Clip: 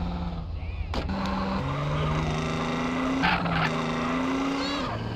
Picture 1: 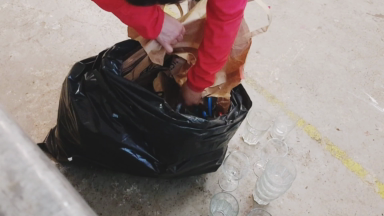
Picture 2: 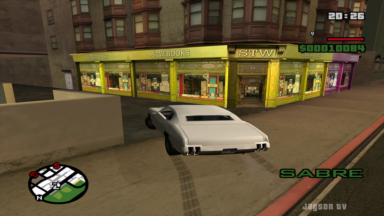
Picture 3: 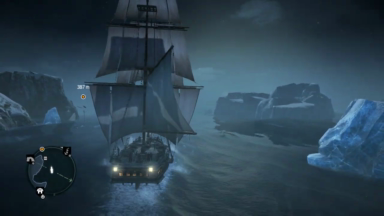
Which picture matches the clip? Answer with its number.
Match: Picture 2